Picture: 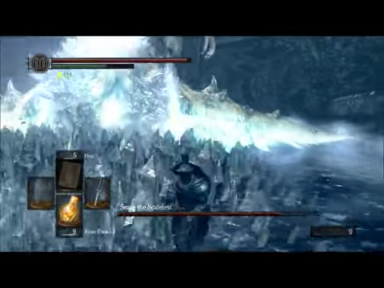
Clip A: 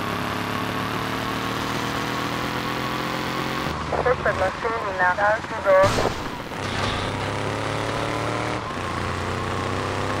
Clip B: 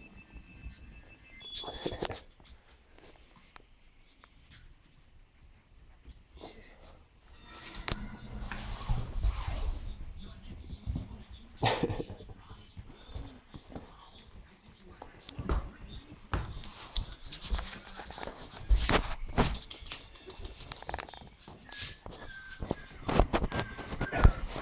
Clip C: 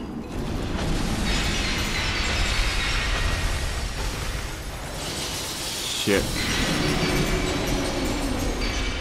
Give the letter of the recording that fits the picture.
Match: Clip C